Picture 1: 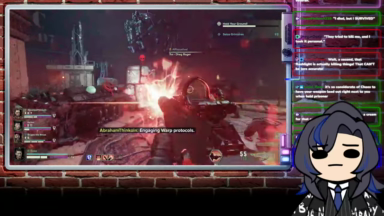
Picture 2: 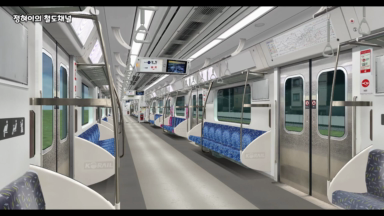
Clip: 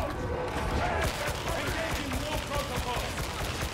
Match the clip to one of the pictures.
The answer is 1